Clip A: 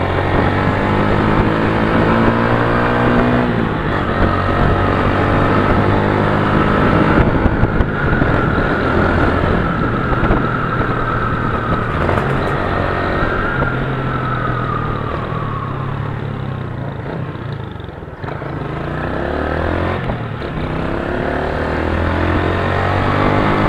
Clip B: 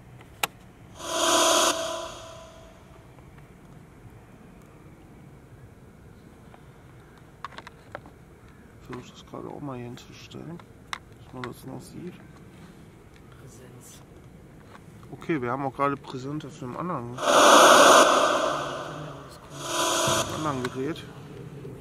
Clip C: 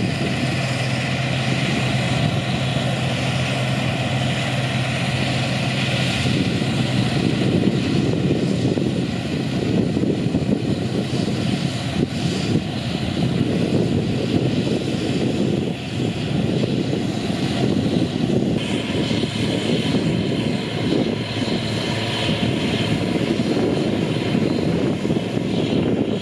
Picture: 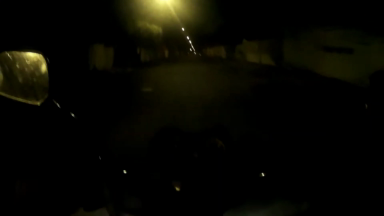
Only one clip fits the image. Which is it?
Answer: A